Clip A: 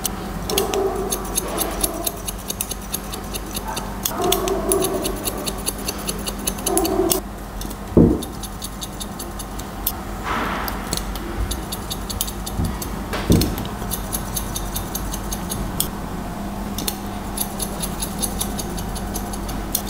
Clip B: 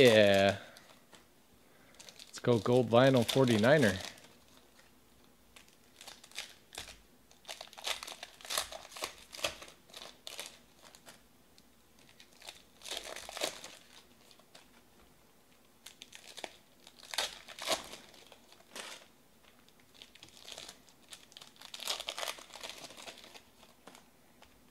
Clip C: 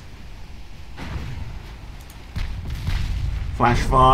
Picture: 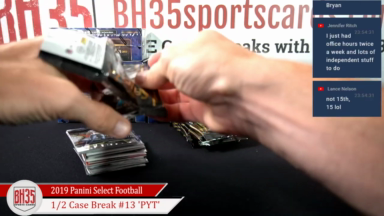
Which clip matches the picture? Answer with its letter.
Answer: B